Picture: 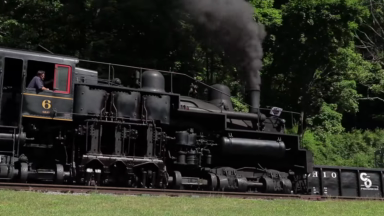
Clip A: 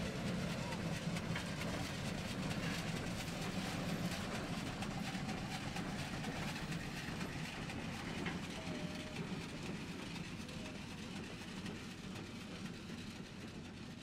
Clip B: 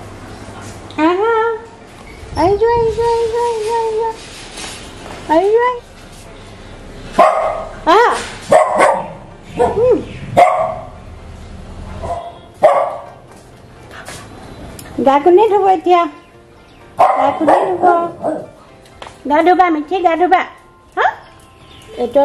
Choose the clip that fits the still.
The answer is A